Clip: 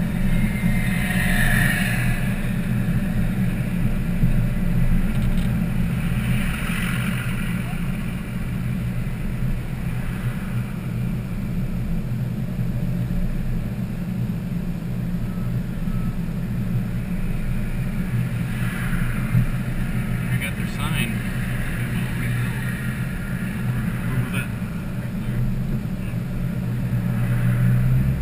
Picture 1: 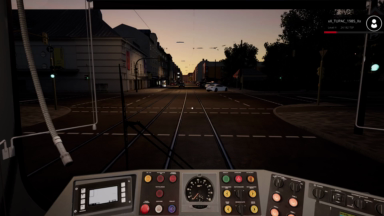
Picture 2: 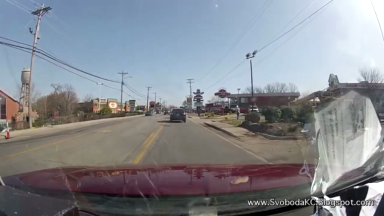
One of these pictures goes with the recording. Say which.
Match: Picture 2